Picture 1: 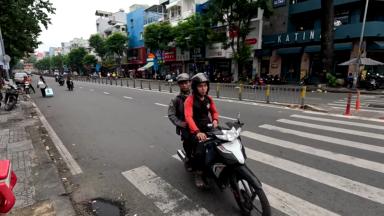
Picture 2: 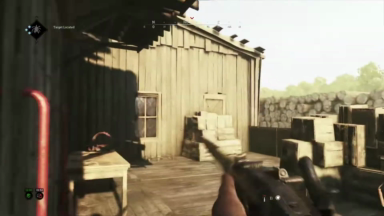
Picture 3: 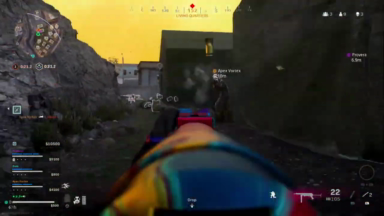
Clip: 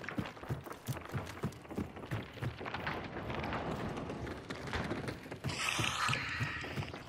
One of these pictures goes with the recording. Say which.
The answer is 2